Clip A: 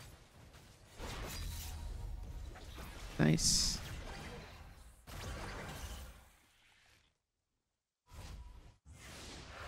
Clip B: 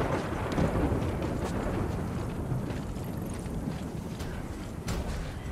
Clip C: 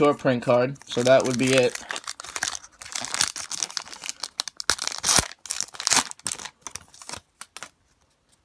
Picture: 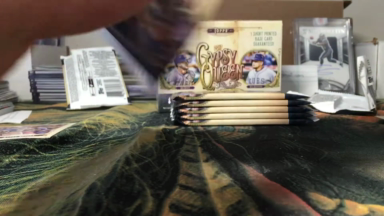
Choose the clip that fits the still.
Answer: C